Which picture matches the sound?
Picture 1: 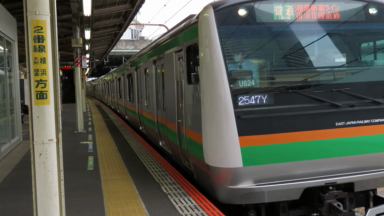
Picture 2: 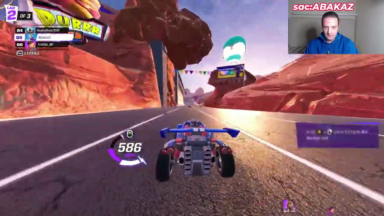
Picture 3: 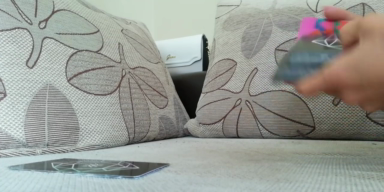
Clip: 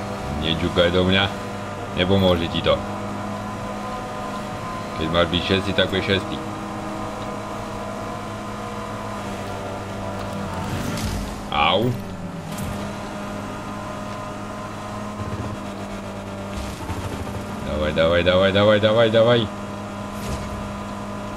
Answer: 2